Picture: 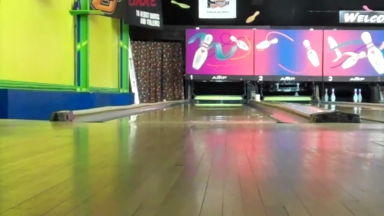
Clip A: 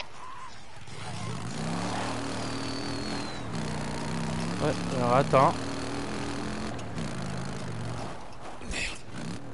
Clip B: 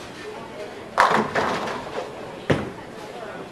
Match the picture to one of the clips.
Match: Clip B